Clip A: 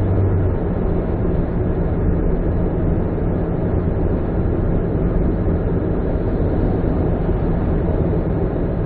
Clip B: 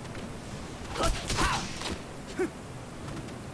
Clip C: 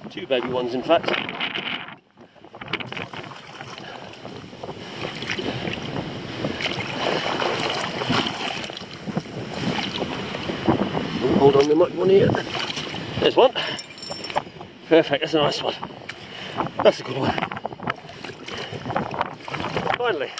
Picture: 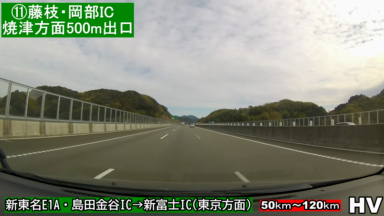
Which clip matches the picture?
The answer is A